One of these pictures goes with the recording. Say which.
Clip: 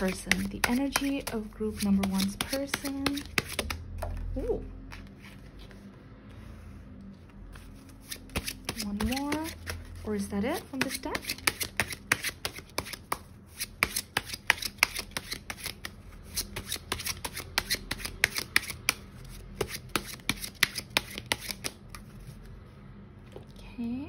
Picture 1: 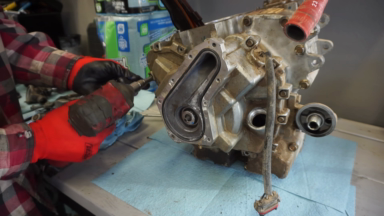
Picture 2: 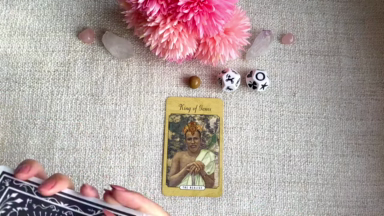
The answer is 2